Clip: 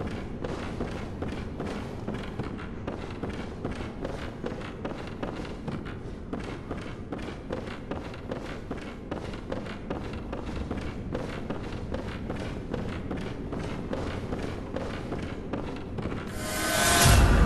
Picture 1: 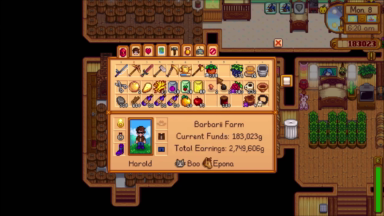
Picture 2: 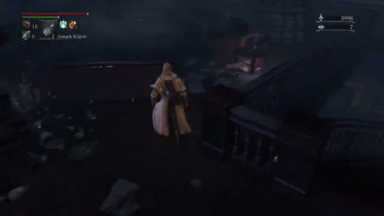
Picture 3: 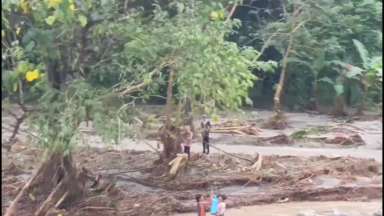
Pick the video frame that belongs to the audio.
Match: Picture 2